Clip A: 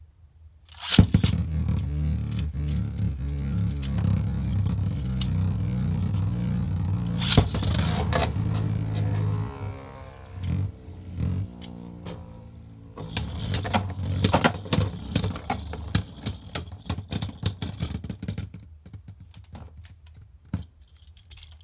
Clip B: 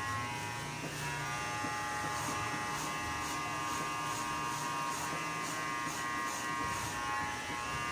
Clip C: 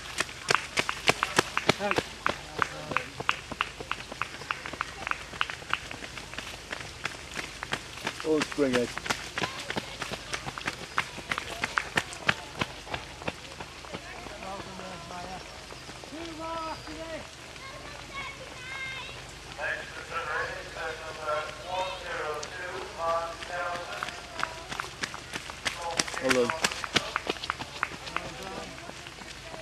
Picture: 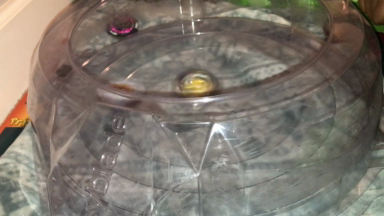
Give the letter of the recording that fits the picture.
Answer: A